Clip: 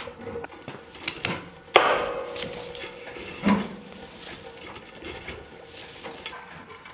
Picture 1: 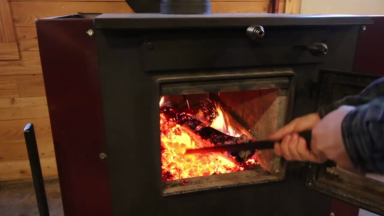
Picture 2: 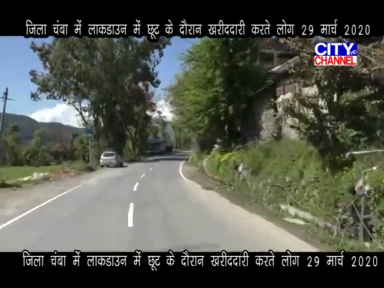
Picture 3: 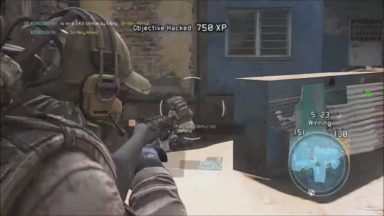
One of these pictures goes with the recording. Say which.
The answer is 1